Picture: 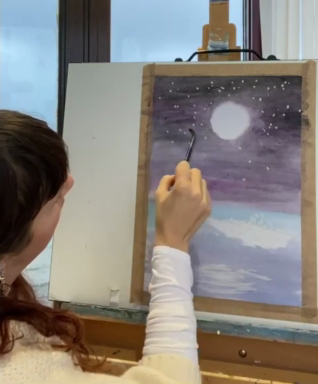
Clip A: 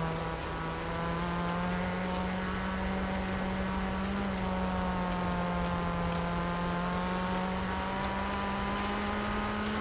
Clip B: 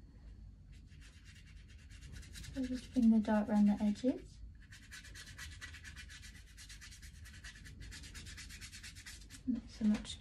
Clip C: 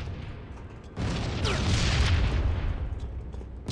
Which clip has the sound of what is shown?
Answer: B